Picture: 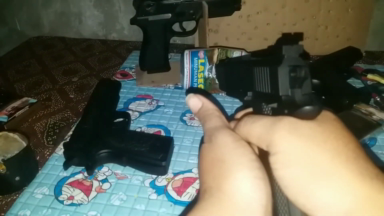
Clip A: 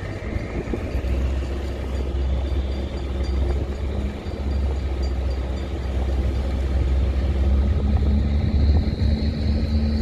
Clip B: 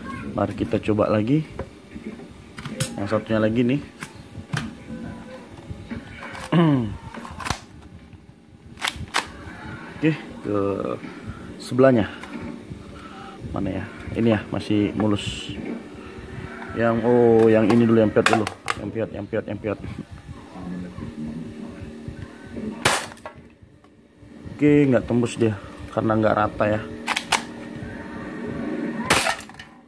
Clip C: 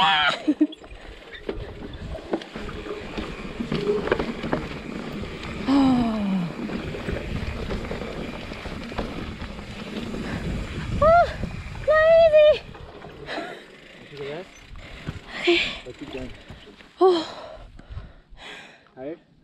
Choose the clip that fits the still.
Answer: B